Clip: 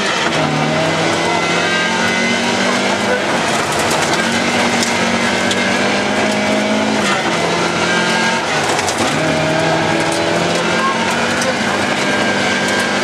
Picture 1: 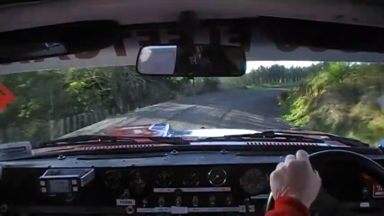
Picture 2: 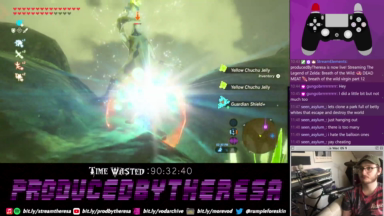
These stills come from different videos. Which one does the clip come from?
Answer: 1